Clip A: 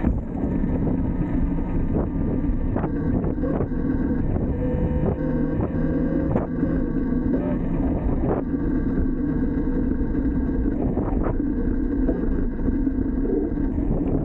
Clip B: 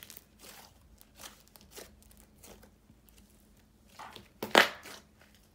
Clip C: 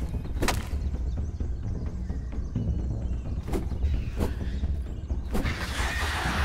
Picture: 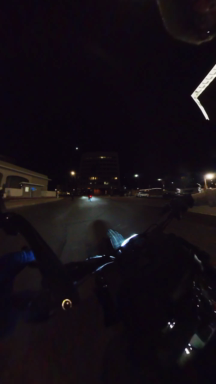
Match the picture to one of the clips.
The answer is A